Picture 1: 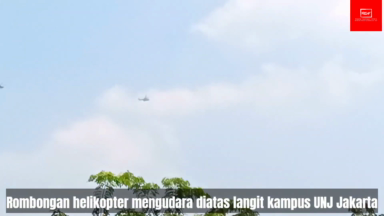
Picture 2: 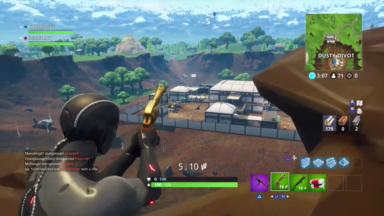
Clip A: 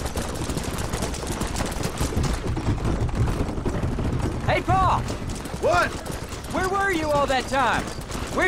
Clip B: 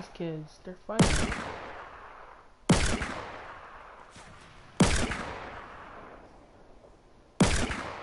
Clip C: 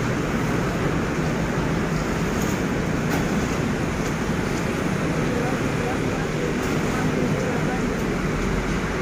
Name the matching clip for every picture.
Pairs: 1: C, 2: B